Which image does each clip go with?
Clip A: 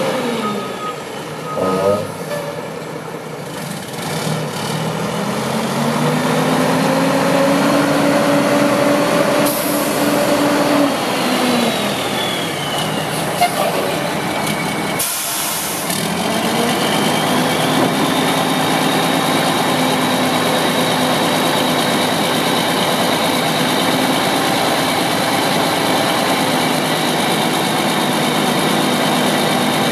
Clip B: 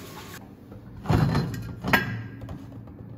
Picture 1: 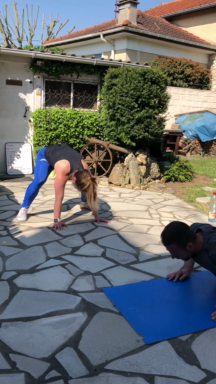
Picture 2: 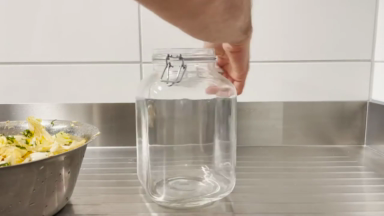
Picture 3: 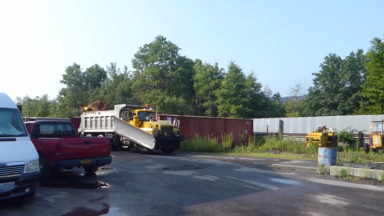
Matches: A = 3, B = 2